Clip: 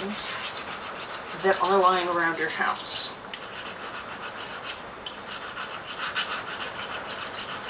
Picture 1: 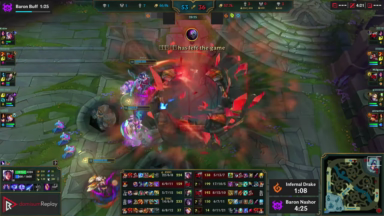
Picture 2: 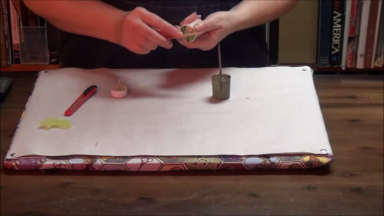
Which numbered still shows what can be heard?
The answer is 2